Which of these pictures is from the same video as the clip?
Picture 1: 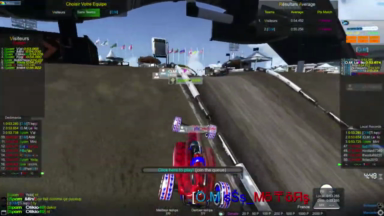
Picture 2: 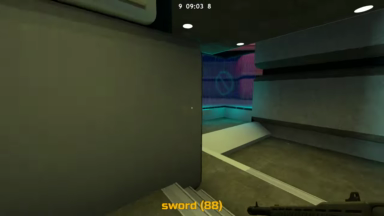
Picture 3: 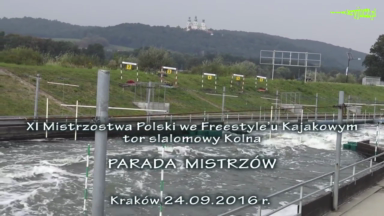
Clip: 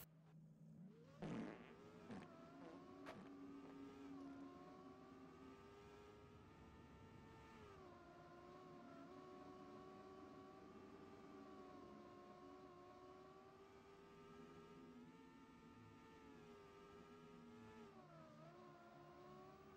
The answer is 1